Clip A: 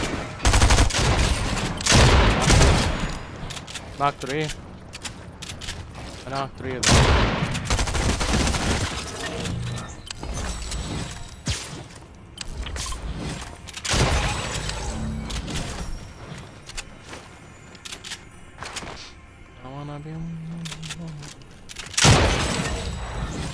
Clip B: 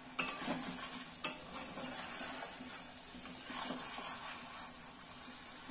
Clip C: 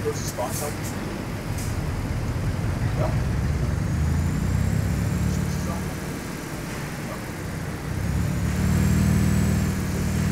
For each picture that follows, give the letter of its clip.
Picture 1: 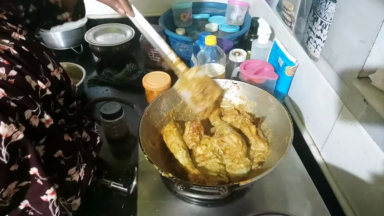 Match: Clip B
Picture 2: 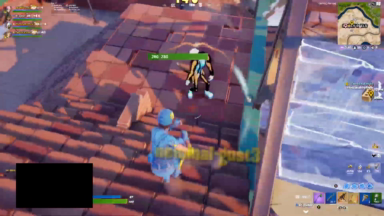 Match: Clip A